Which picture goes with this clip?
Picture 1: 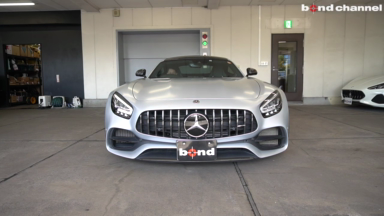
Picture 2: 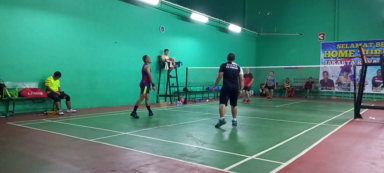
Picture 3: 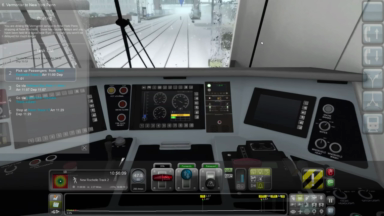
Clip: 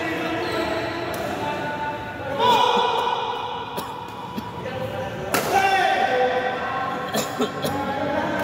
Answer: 2